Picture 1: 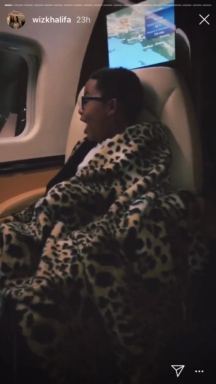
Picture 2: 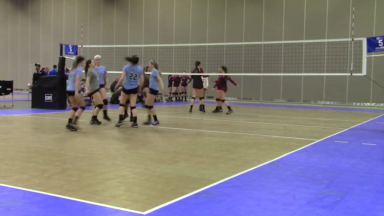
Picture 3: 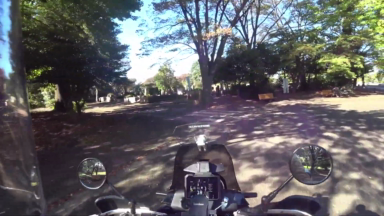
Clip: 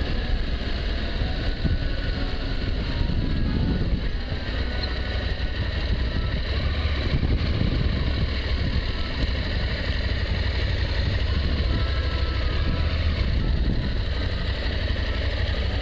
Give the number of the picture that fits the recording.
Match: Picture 3